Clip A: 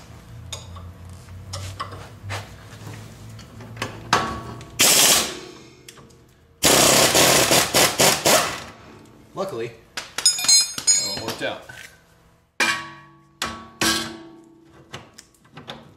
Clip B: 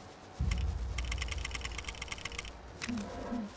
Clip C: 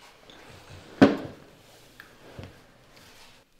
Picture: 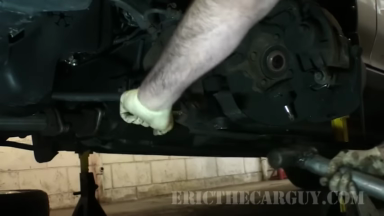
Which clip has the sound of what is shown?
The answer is A